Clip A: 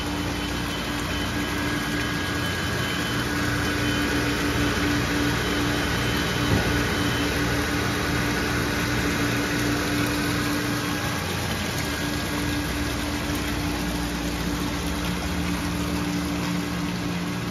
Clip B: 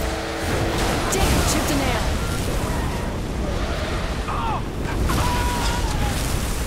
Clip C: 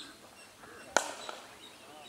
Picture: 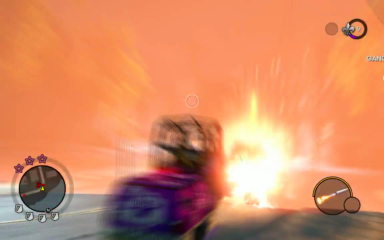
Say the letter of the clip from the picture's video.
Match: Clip B